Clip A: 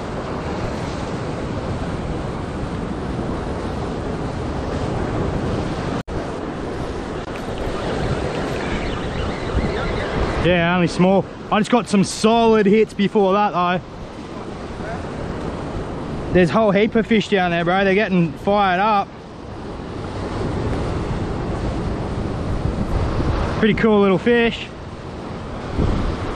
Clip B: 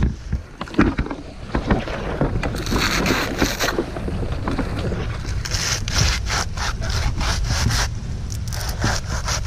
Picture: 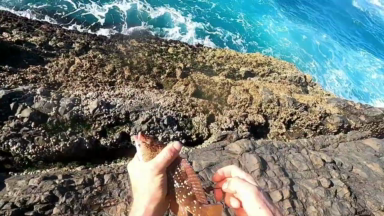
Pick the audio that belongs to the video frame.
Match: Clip A